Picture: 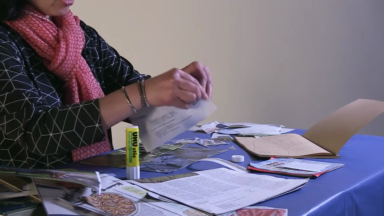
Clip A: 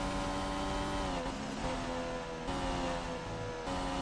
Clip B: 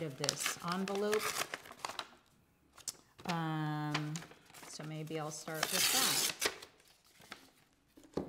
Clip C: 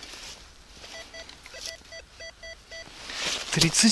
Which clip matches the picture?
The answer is B